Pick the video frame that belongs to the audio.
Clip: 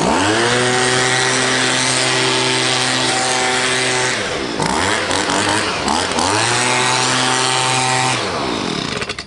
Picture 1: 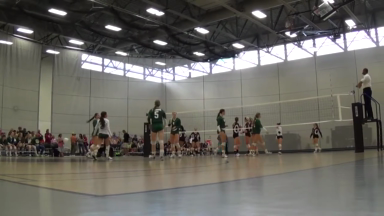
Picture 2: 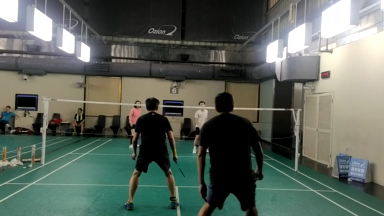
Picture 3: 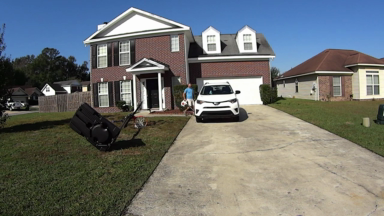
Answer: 3